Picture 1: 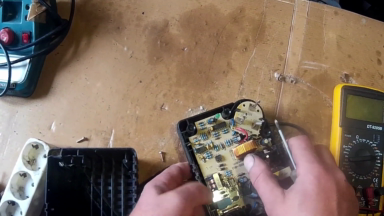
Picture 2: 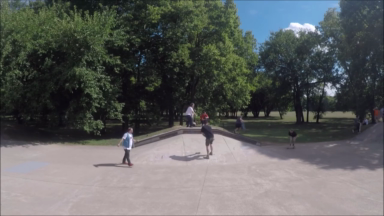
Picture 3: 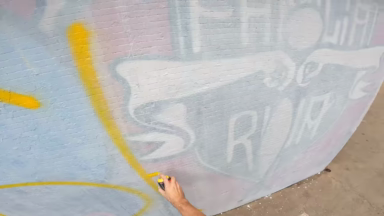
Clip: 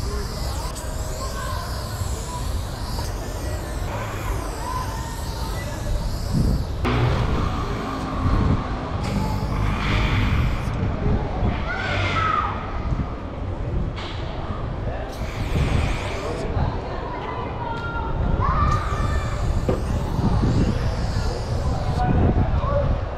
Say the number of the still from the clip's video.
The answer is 3